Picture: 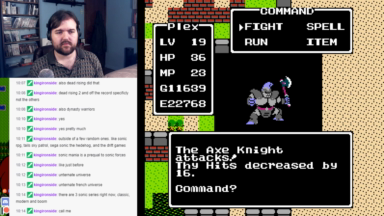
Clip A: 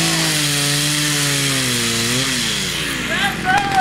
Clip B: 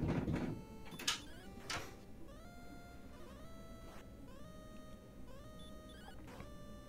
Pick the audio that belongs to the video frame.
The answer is B